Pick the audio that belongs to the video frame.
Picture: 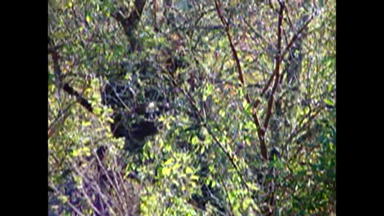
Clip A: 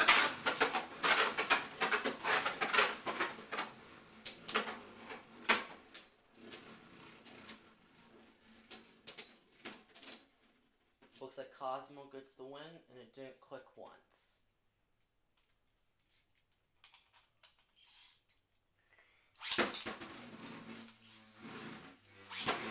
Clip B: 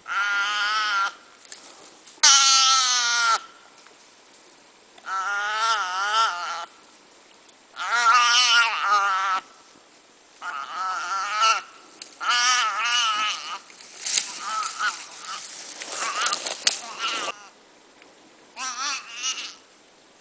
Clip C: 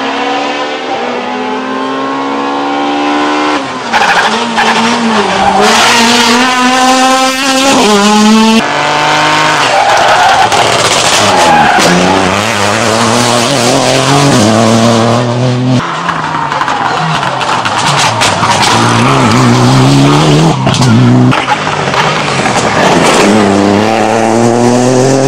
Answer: B